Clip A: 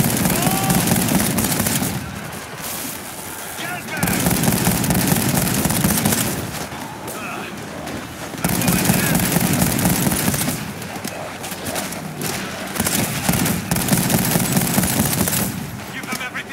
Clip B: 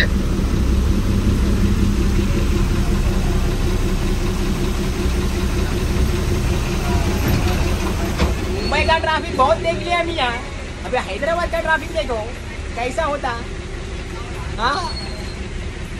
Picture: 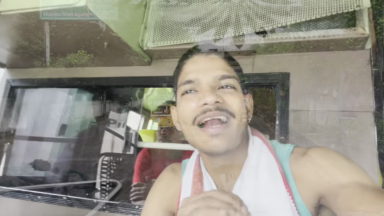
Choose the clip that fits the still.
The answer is B